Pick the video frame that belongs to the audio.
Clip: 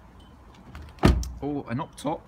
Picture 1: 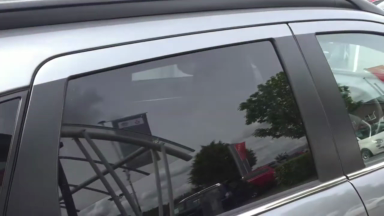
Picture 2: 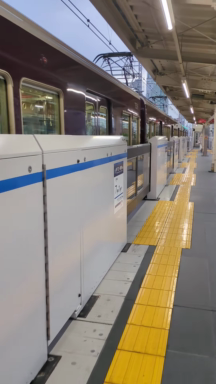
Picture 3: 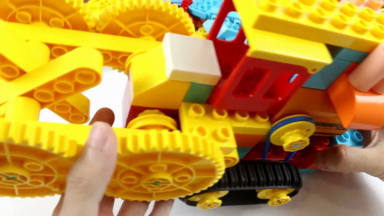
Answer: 1